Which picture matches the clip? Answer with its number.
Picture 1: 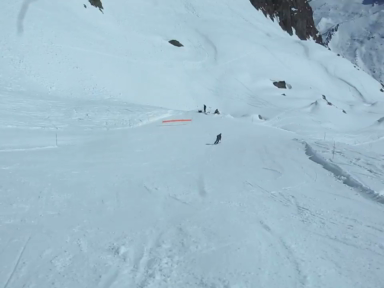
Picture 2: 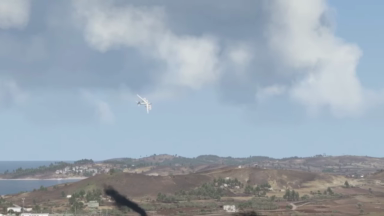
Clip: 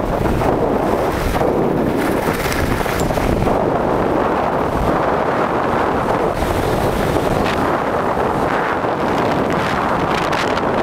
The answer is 1